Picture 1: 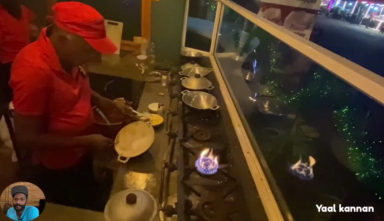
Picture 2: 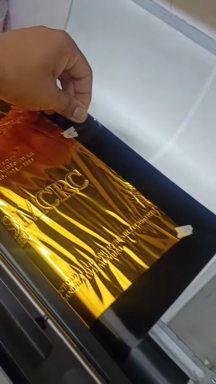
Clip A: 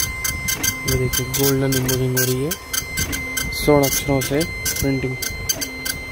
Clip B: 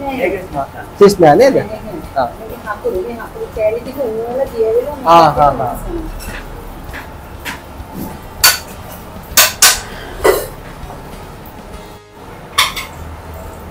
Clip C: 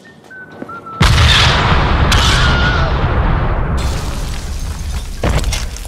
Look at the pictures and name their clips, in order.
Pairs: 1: B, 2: A